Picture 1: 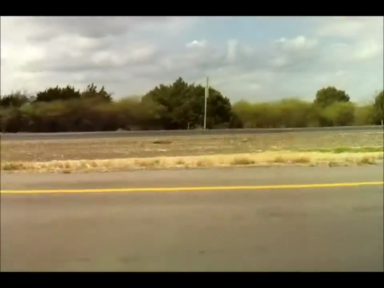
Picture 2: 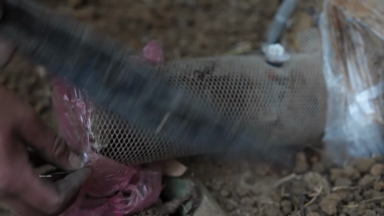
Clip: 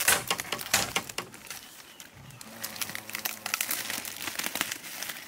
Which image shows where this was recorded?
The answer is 2